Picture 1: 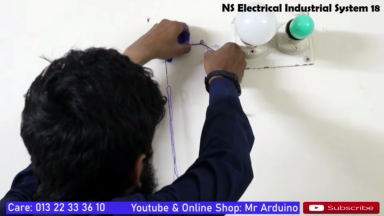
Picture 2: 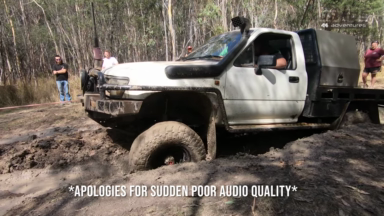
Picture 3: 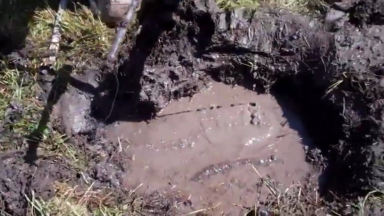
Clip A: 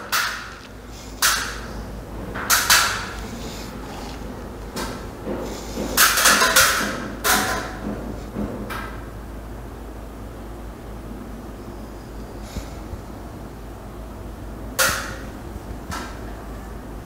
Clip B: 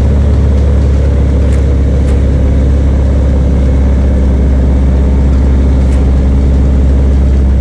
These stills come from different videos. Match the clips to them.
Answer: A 1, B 2